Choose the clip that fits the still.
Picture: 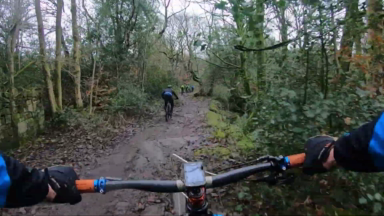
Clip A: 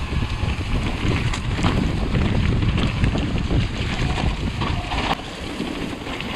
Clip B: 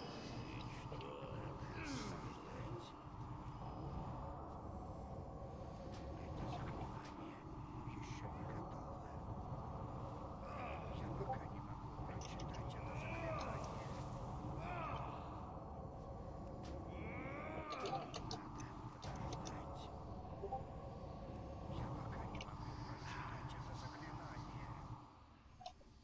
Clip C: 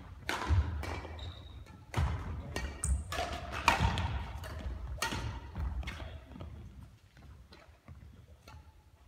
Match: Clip A